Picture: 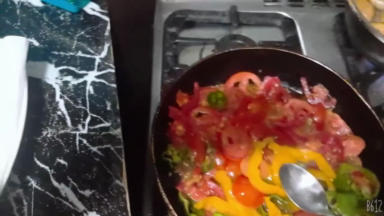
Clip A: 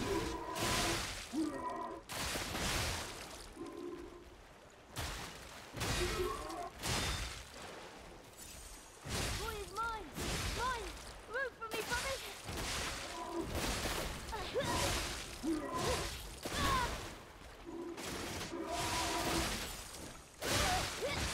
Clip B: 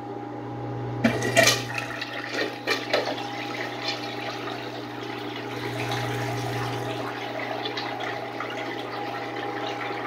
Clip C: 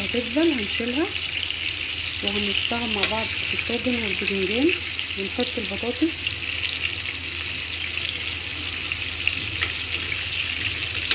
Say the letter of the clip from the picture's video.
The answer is C